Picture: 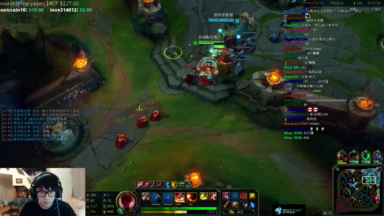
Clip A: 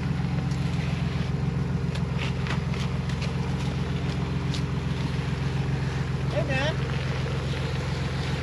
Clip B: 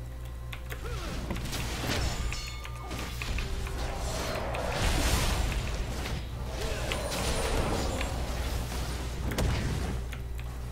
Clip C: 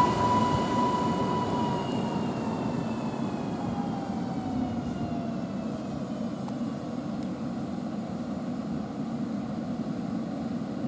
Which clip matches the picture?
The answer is B